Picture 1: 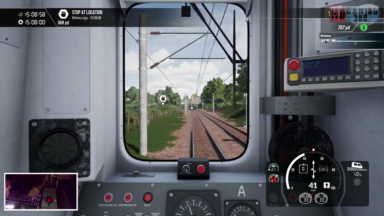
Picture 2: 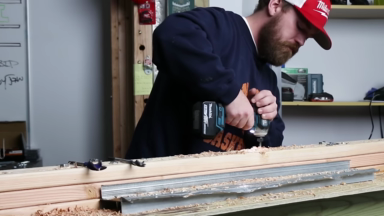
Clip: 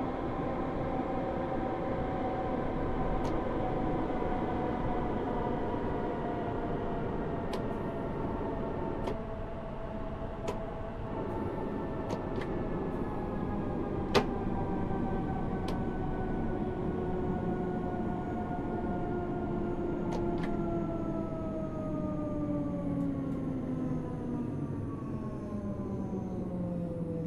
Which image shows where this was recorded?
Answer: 1